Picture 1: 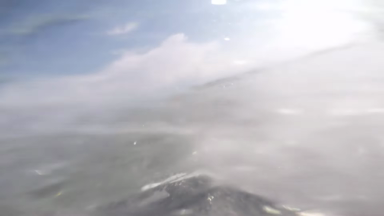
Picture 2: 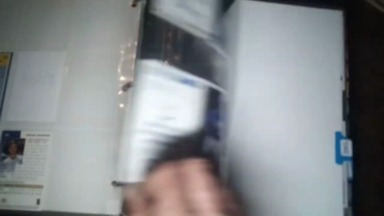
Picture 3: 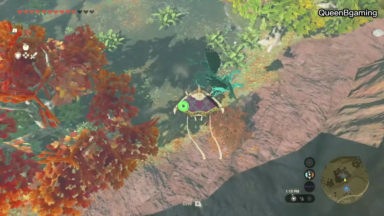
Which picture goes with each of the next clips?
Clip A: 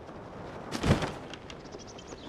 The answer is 3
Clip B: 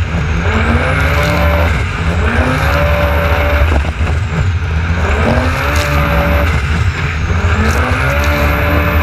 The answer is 1